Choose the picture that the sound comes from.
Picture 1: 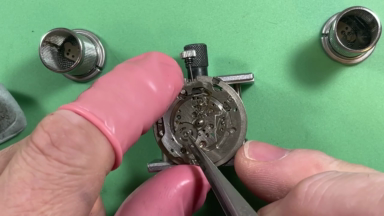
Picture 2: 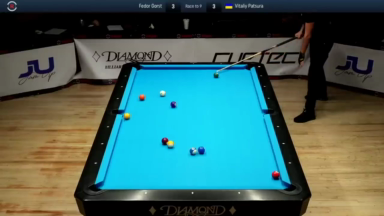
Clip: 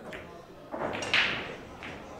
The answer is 2